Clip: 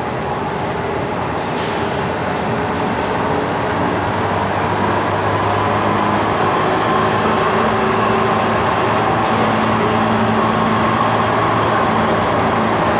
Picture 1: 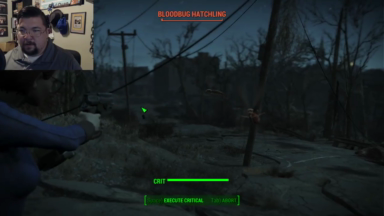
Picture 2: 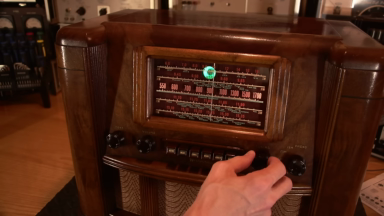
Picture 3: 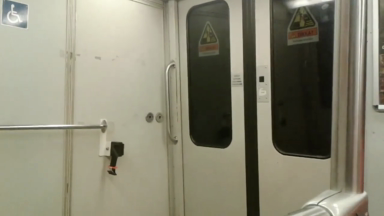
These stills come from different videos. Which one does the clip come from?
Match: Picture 3